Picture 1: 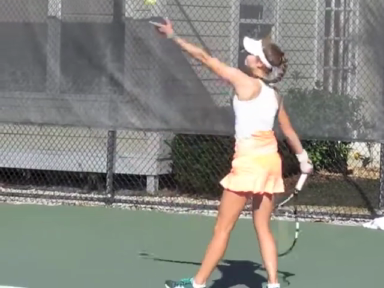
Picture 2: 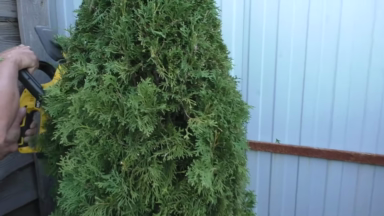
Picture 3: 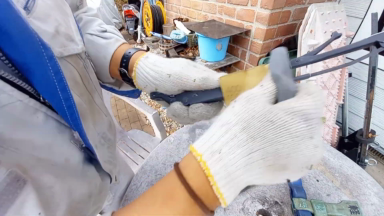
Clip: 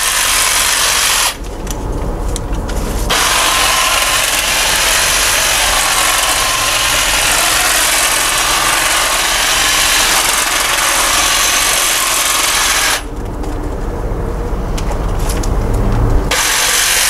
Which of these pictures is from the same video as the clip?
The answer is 2